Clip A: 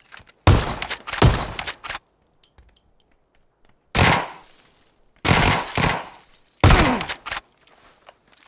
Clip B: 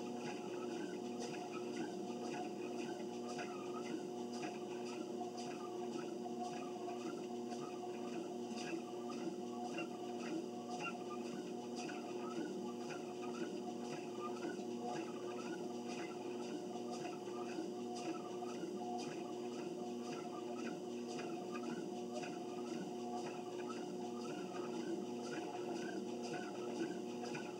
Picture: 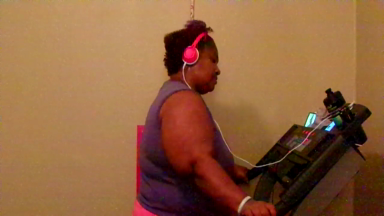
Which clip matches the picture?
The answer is B